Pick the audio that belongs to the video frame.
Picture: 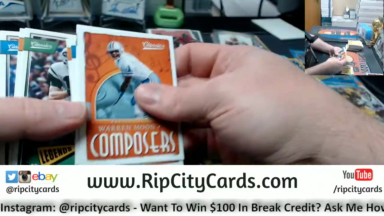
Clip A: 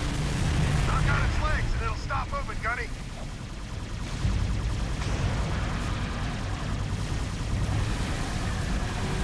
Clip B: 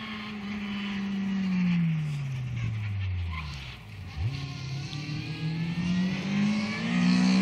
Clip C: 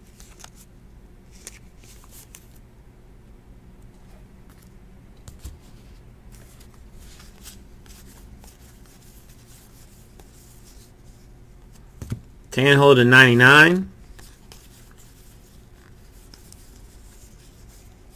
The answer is C